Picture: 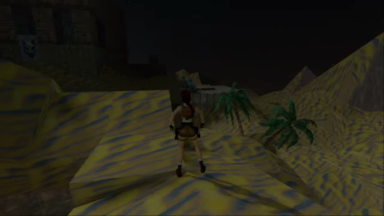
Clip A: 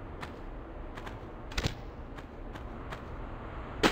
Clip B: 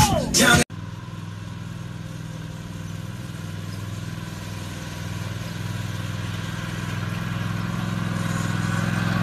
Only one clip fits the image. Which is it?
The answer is A